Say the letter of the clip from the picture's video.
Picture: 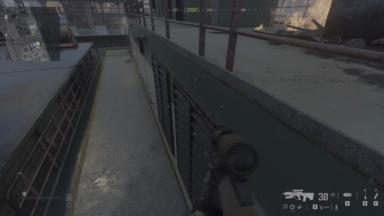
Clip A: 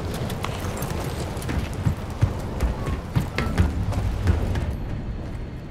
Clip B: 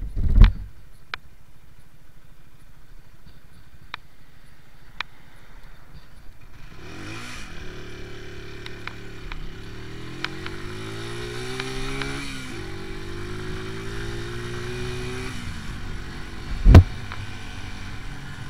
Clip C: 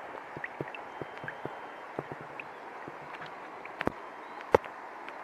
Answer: A